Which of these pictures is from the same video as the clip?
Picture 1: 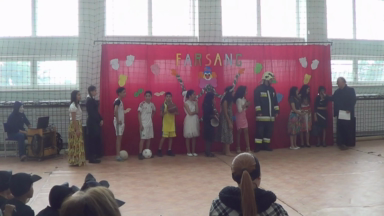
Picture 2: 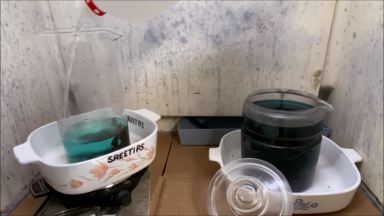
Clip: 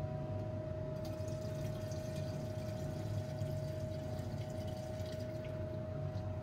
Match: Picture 2